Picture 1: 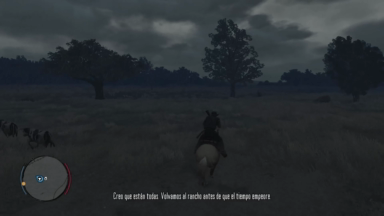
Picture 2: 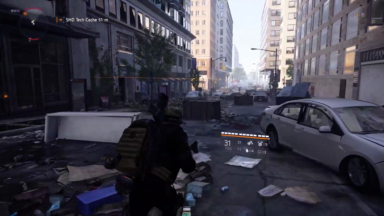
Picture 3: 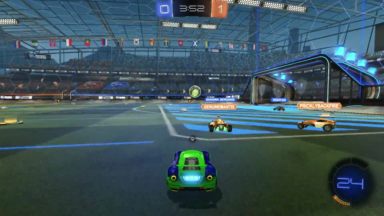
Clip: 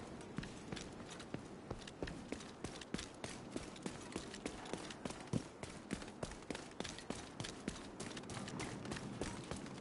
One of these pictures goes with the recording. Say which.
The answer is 2